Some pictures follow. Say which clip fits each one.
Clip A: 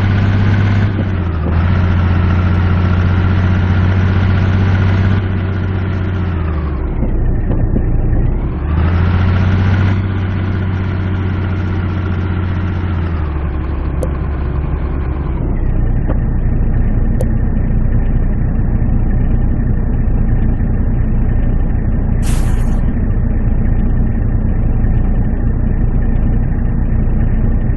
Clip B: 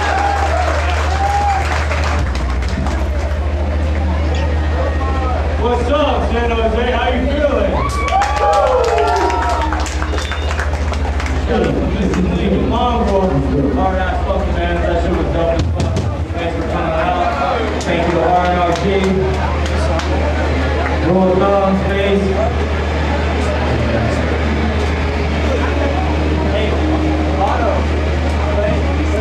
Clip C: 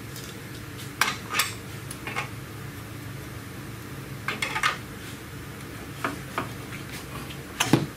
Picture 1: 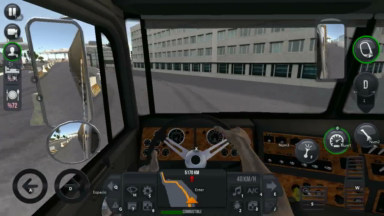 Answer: A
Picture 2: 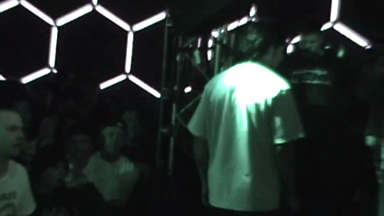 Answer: B